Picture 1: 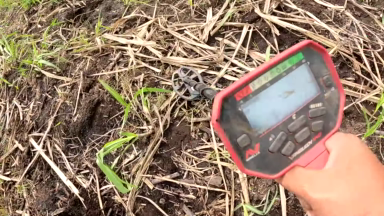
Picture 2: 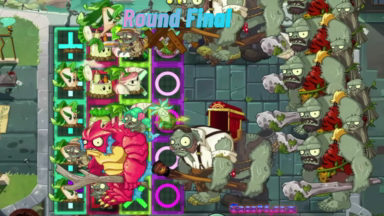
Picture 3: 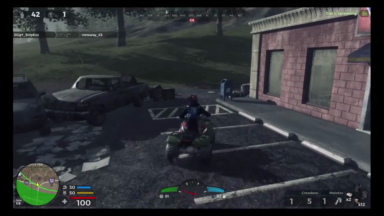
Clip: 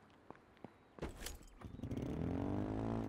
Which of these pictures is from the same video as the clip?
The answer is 3